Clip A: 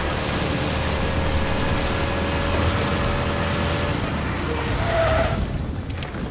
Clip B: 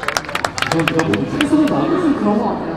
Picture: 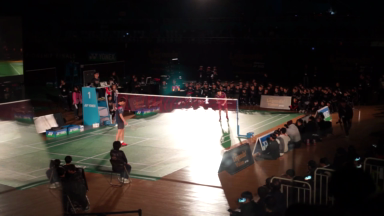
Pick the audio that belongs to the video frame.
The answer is B